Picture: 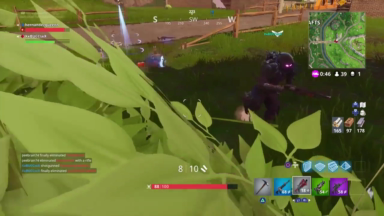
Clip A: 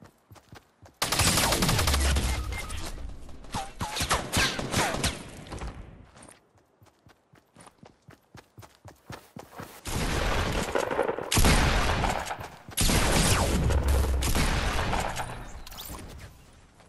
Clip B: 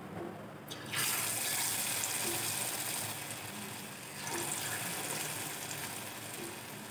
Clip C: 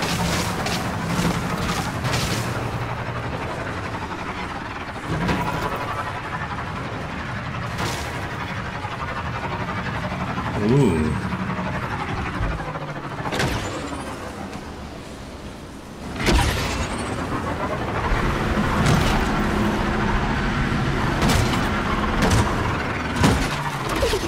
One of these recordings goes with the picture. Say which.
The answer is A